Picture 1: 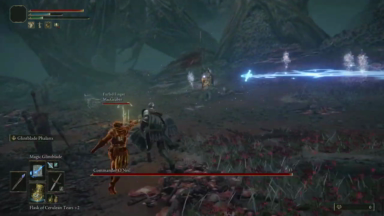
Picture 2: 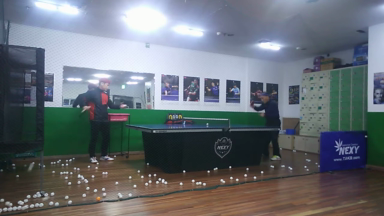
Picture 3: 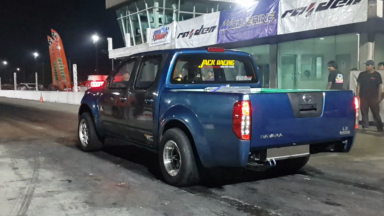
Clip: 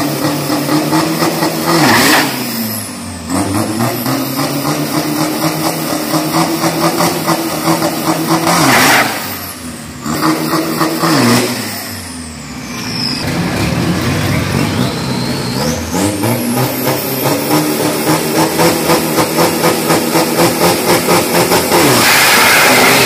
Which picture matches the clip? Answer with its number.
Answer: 3